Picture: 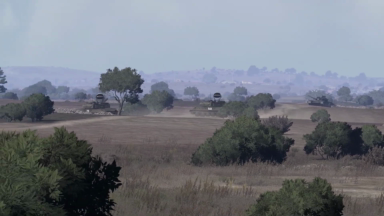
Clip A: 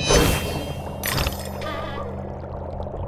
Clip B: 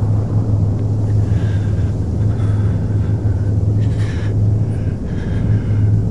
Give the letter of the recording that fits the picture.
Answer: B